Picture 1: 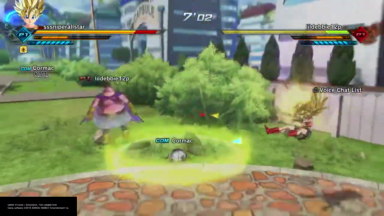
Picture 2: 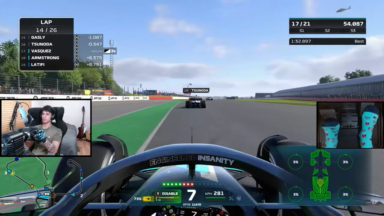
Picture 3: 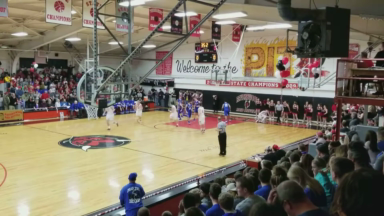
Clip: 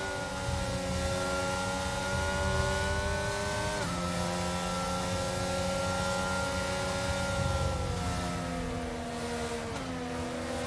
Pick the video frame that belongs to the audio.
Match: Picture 2